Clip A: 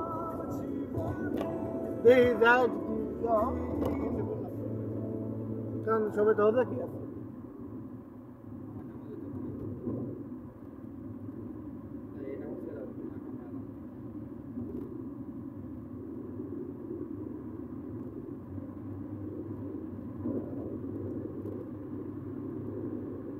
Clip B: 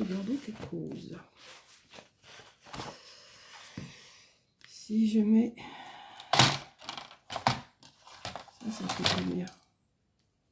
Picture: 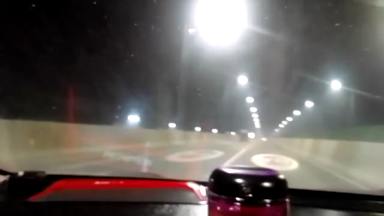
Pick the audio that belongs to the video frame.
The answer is A